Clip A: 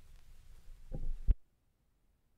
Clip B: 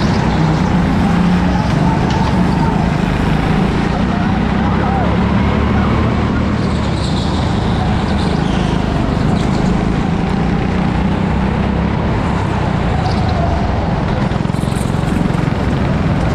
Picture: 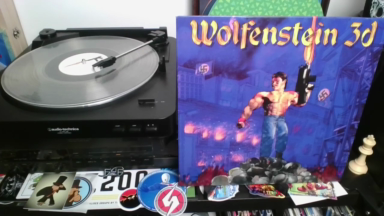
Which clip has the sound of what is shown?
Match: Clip A